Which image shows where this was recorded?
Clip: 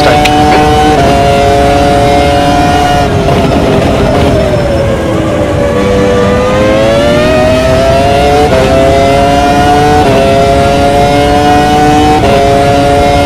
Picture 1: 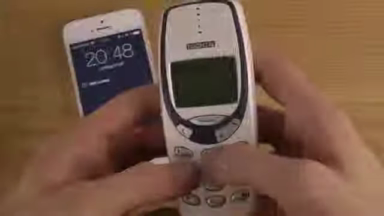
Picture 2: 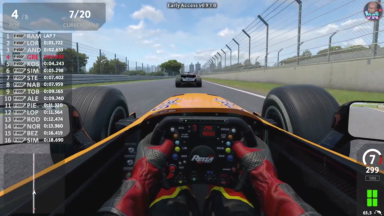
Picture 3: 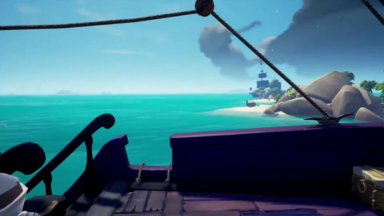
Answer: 2